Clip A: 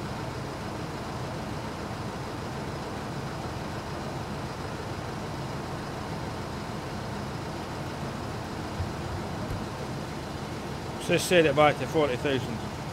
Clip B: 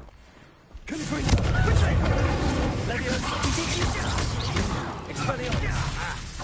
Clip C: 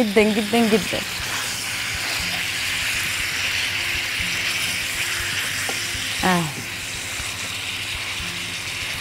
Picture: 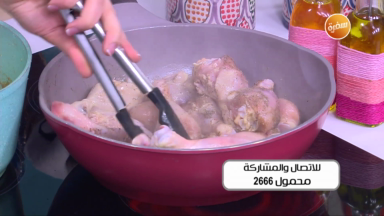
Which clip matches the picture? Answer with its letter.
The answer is C